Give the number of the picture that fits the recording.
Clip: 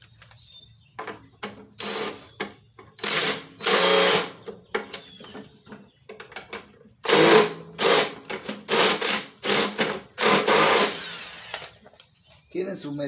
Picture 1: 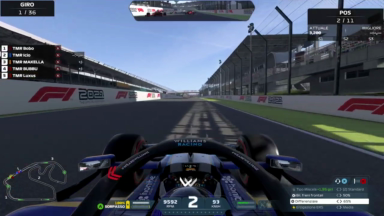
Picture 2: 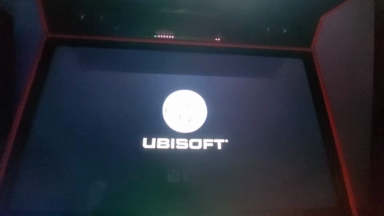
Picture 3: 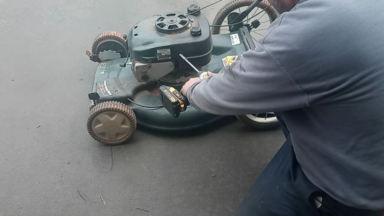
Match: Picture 3